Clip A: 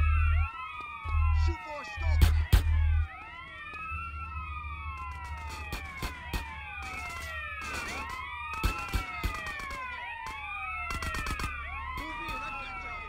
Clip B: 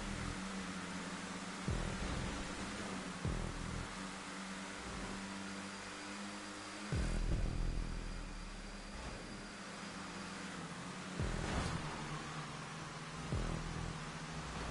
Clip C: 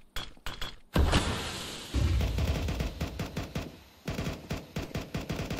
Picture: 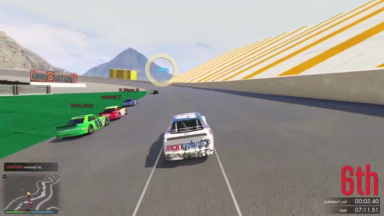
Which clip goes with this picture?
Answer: B